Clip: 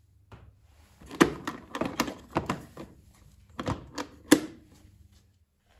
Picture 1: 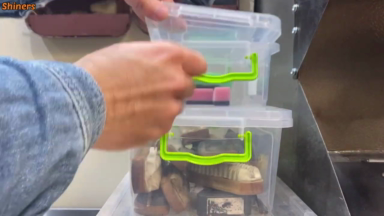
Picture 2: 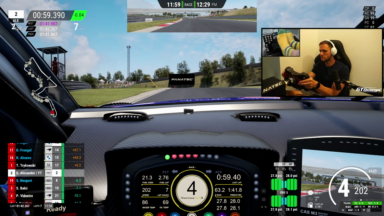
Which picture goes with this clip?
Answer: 1